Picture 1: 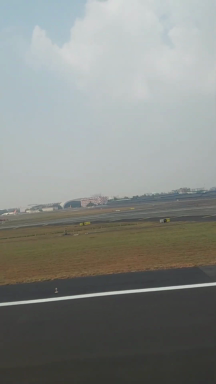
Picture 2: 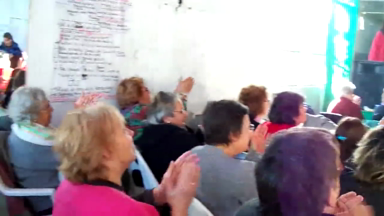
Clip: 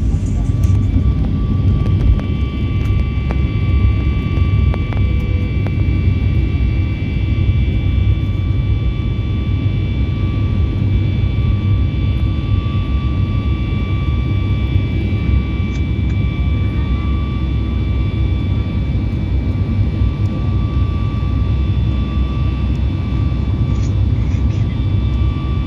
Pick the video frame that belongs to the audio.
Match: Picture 1